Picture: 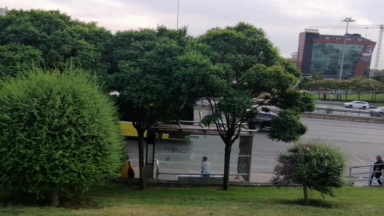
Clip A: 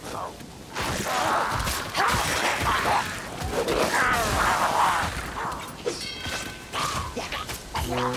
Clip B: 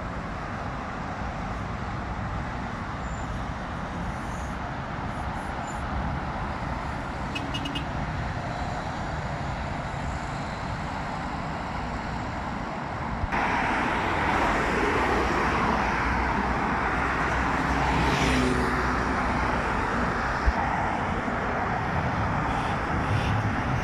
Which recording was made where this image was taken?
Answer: B